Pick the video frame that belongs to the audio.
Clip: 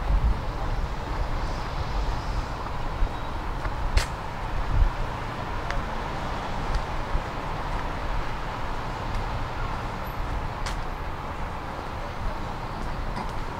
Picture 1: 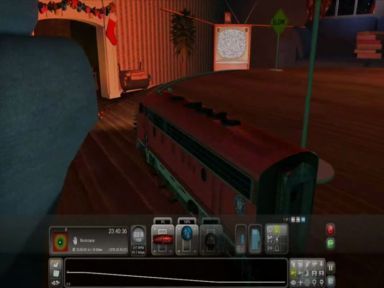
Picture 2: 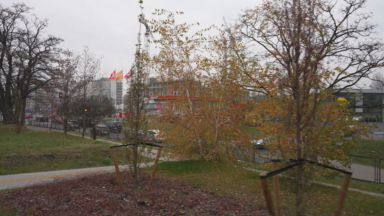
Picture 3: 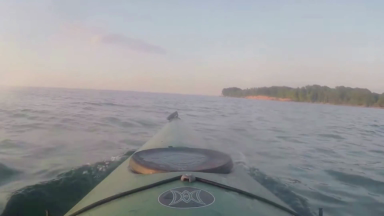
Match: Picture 2